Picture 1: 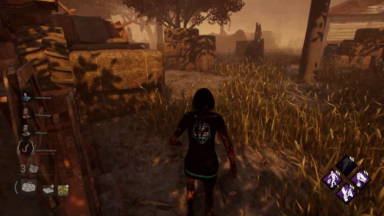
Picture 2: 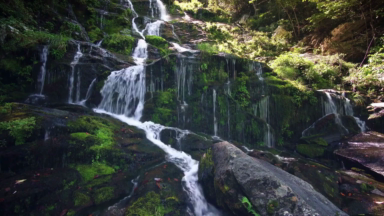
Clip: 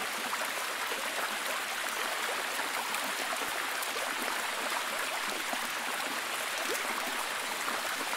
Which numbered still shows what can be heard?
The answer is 2